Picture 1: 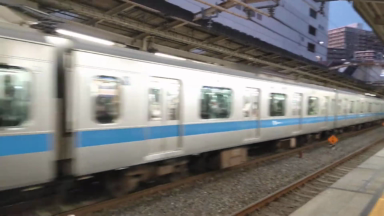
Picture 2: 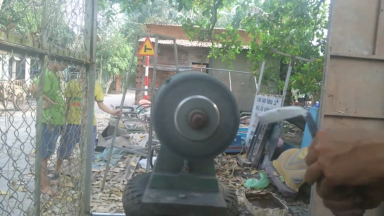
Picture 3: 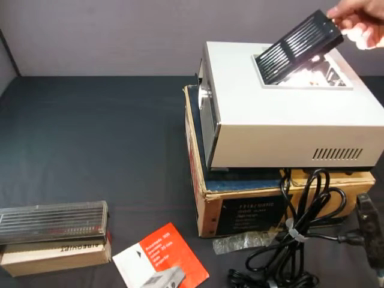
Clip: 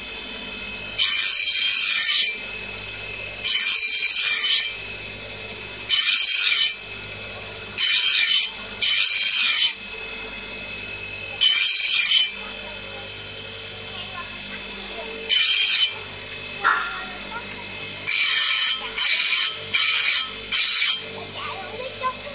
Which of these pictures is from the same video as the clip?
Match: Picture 2